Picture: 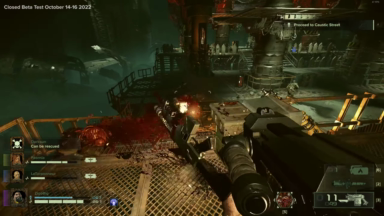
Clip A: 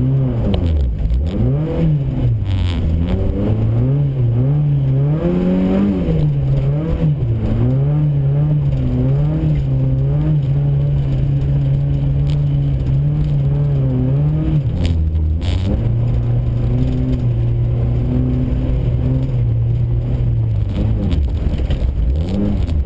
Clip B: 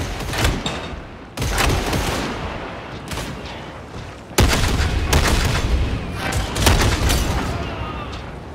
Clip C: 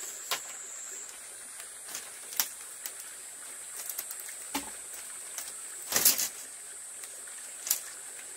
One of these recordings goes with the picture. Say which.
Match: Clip B